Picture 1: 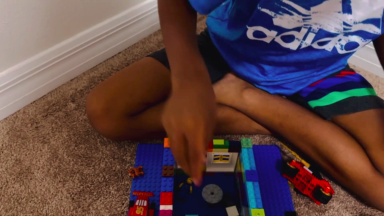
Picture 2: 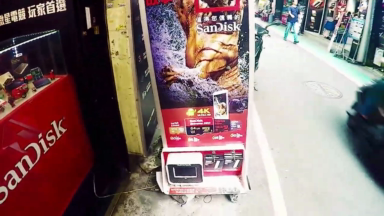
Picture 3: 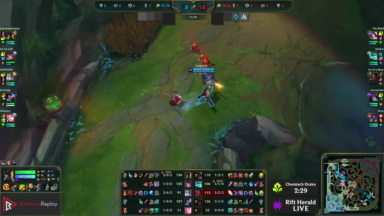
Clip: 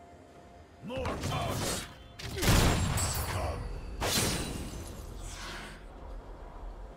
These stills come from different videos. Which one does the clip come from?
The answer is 3